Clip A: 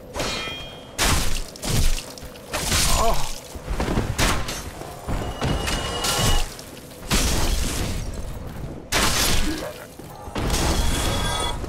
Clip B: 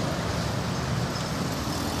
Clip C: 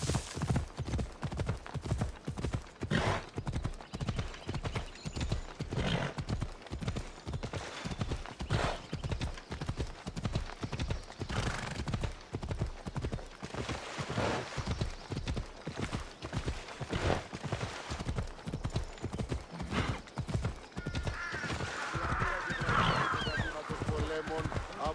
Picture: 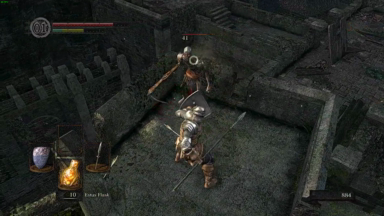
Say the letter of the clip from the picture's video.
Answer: A